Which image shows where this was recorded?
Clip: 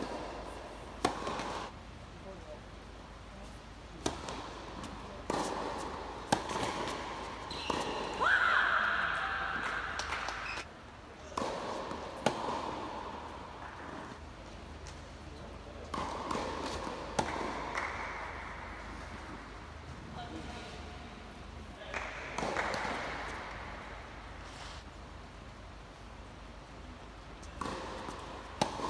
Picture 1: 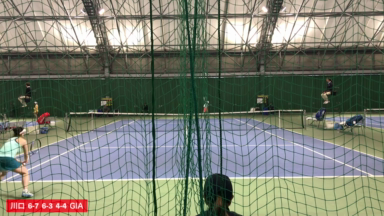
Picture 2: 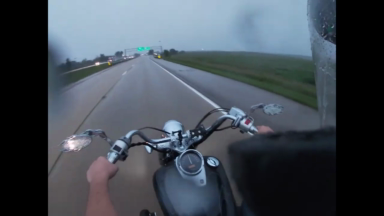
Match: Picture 1